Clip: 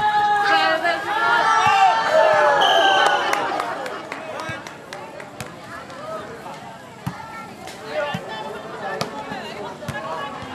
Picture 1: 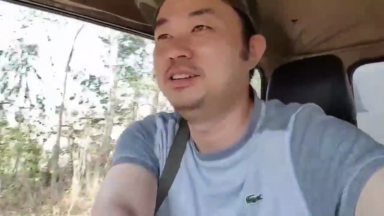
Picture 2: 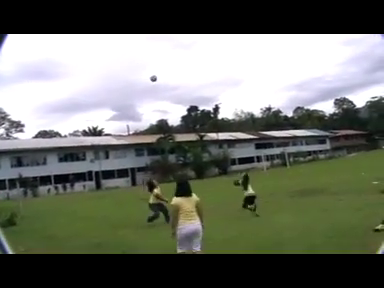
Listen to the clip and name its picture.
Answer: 2